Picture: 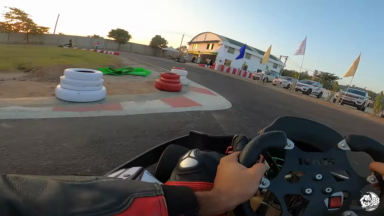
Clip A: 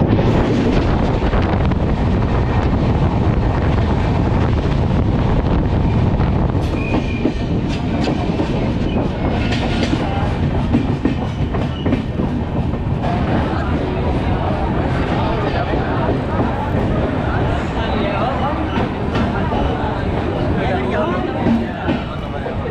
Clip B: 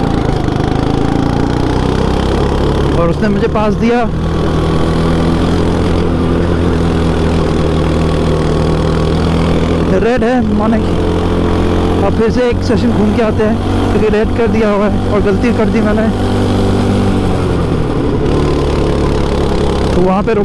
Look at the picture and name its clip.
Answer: B